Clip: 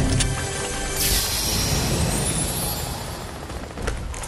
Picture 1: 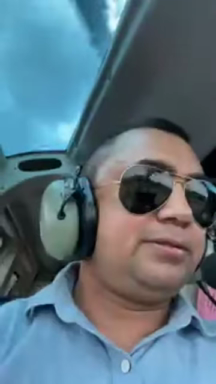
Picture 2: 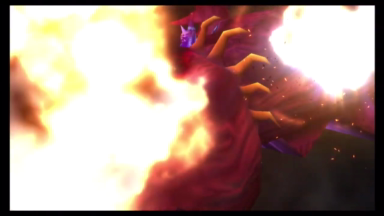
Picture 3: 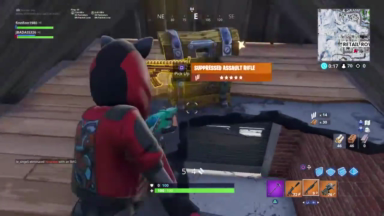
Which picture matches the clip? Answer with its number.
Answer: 3